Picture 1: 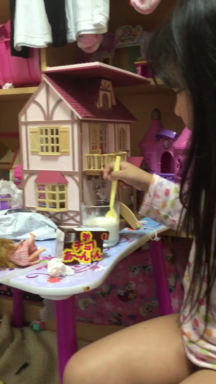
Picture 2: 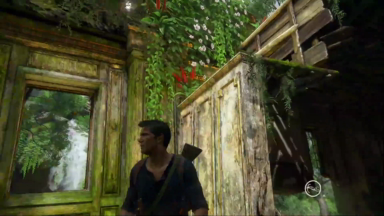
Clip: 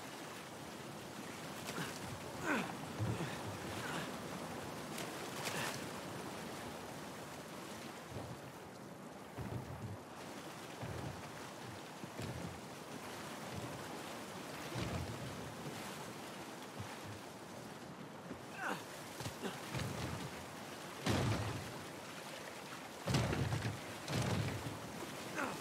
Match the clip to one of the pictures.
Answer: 2